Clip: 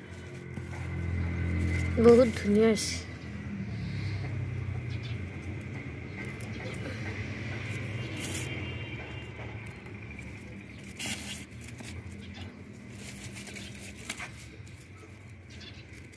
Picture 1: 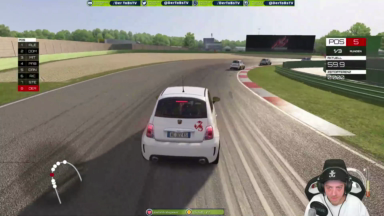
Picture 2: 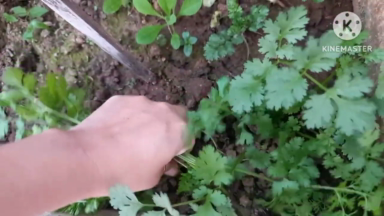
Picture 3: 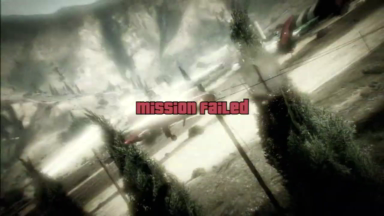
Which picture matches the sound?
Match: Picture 2